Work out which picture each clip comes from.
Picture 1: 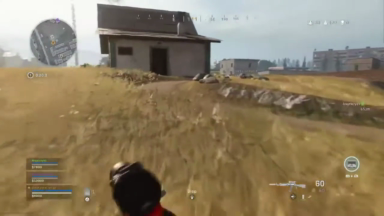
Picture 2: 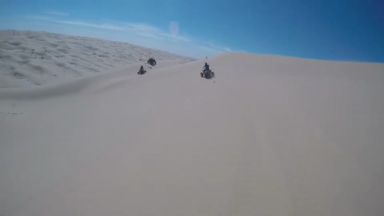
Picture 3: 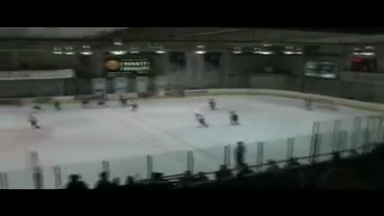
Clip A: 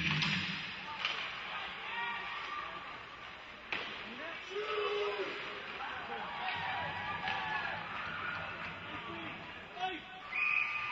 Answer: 3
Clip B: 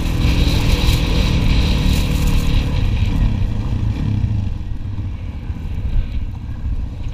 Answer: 2